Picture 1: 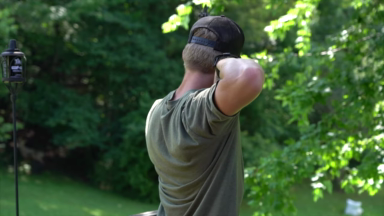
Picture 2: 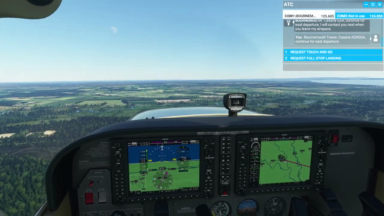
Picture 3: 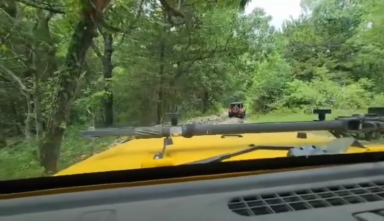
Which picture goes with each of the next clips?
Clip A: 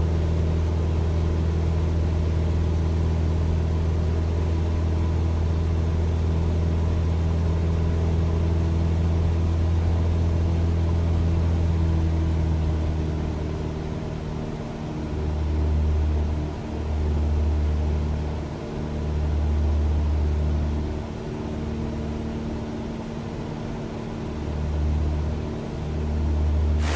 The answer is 2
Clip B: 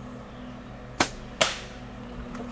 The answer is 1